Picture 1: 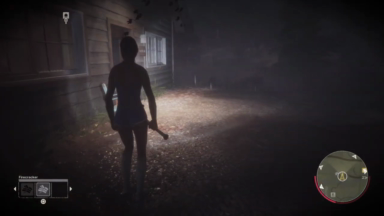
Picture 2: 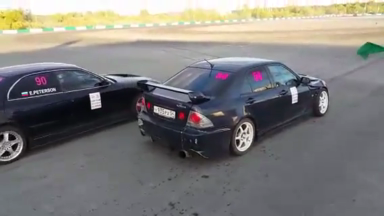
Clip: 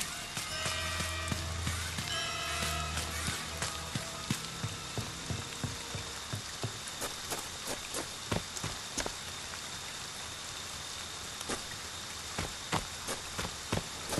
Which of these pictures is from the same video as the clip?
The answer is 1